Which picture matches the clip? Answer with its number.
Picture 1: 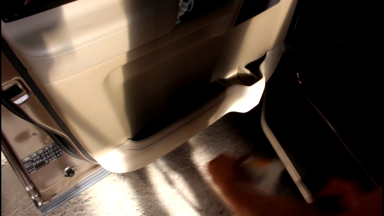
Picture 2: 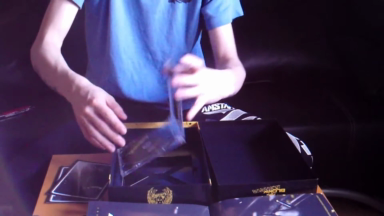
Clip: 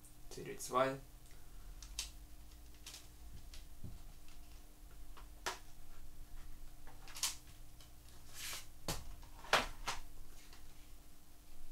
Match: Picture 2